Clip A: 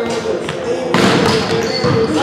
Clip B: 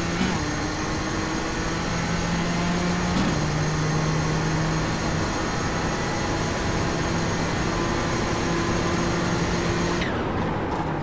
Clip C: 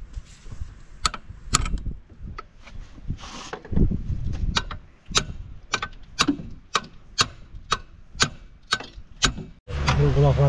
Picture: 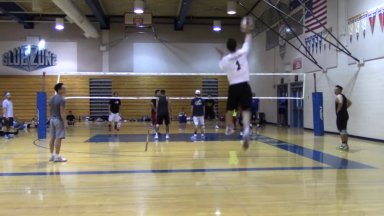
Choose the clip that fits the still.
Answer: A